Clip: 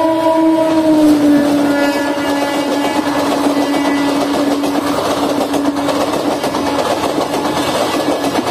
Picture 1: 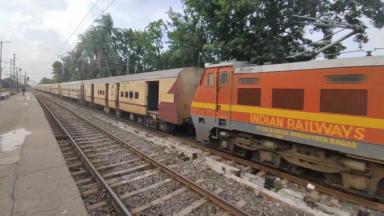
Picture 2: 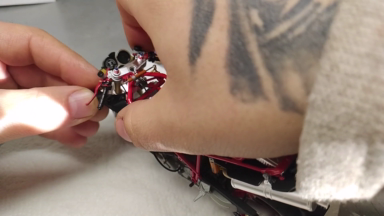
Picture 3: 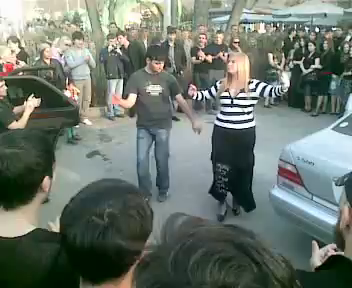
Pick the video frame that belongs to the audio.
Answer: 1